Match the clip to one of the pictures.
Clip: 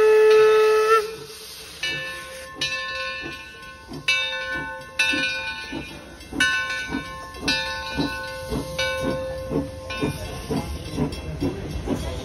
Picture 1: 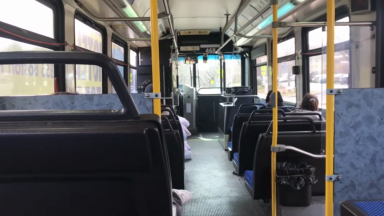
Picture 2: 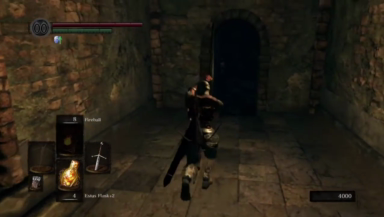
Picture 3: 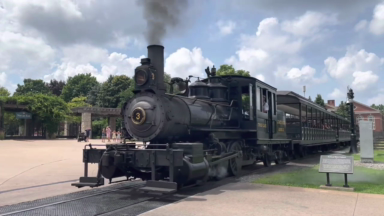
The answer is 3